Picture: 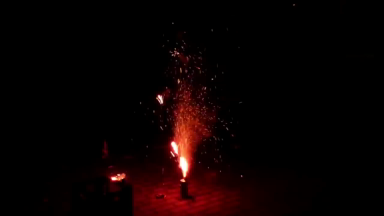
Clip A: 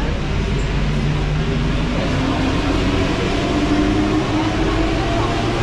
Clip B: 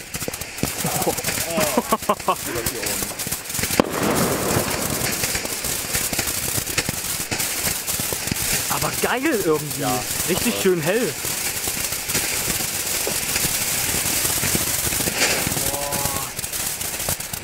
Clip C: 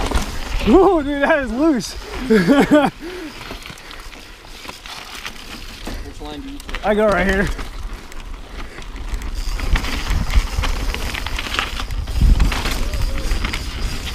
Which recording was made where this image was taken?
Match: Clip B